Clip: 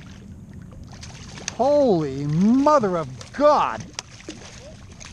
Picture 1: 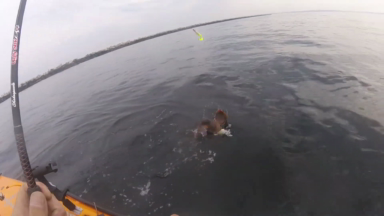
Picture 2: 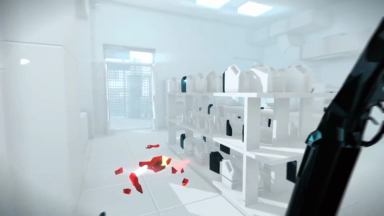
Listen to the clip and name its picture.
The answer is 1